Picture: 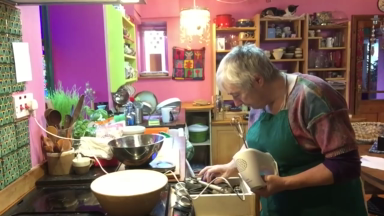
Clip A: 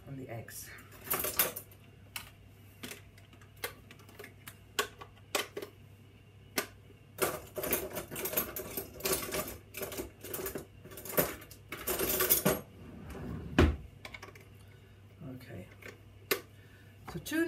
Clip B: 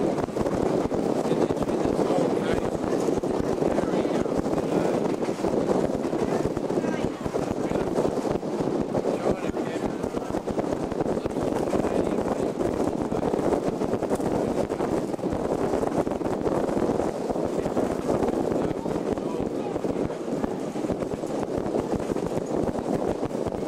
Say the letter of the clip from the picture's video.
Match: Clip A